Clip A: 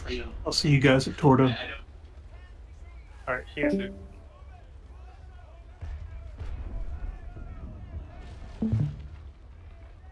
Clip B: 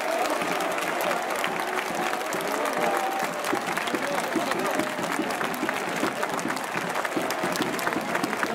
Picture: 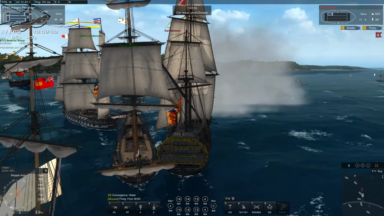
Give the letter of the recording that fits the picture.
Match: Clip A